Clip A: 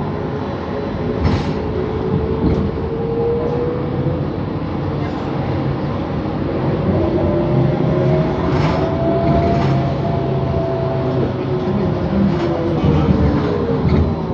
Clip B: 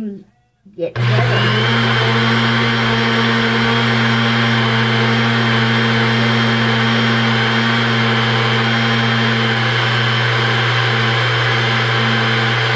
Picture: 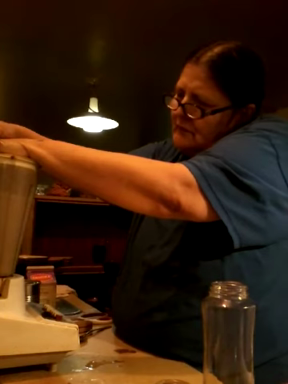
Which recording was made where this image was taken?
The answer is B